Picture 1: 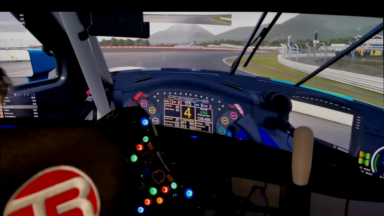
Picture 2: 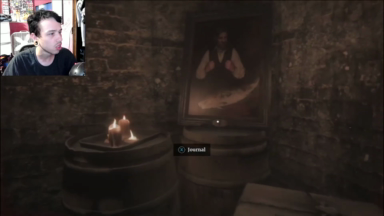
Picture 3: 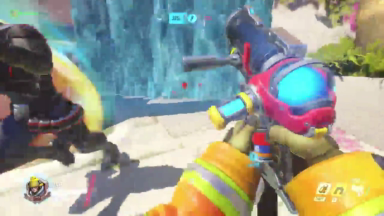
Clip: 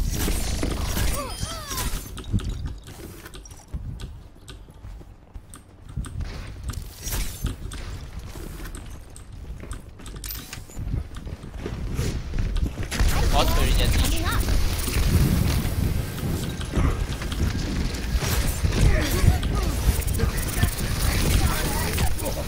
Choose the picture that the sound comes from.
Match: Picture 3